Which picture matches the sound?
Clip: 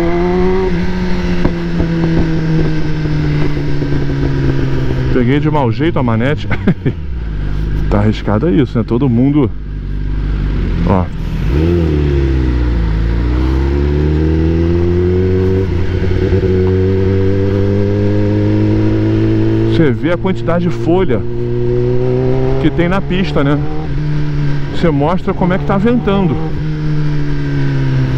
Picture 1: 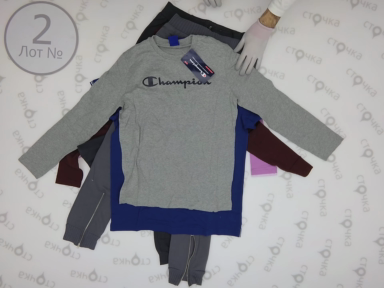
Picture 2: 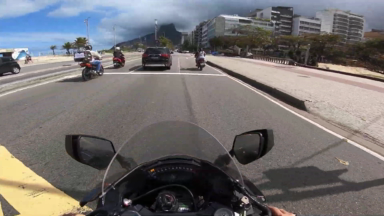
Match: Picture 2